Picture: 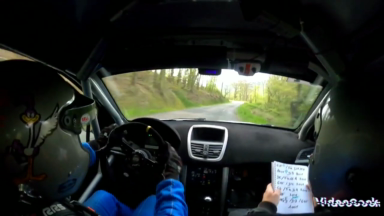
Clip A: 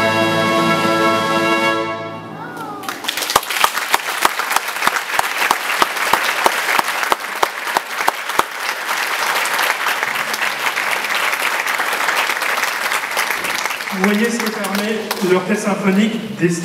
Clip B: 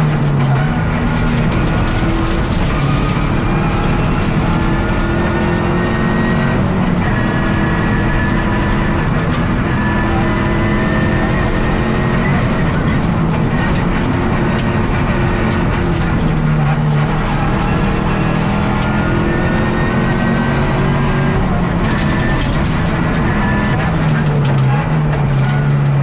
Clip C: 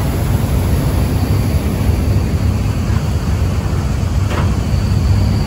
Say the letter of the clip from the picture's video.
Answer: B